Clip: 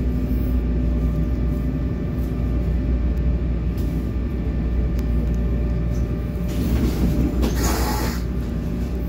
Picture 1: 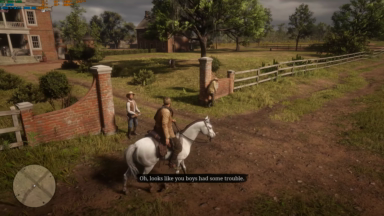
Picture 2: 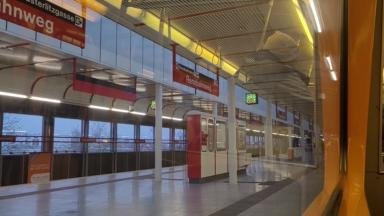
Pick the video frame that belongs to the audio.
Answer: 2